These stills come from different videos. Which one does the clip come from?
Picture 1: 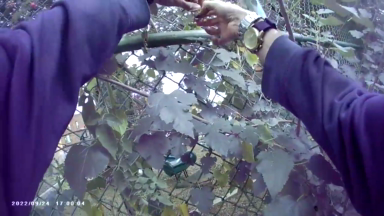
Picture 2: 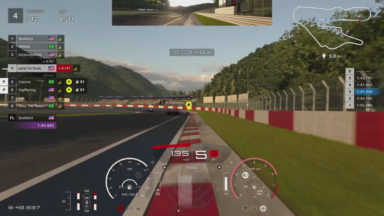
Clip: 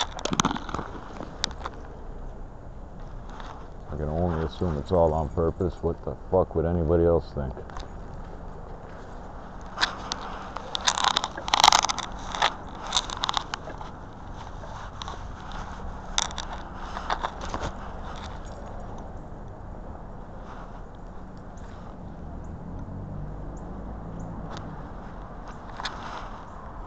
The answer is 1